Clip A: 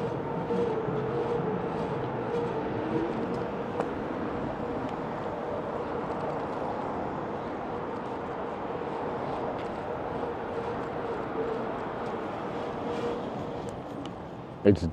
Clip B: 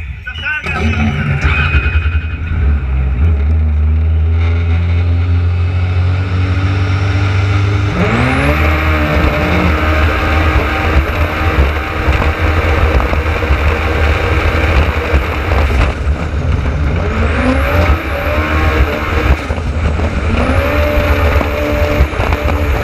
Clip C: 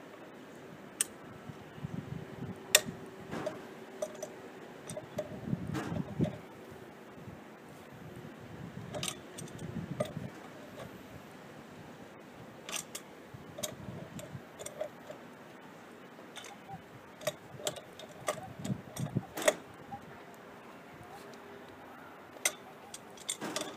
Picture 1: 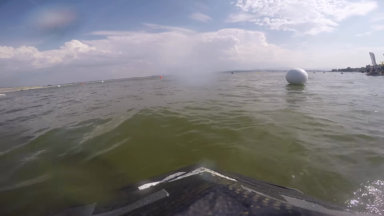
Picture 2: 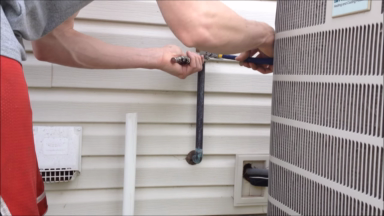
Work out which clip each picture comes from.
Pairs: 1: B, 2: C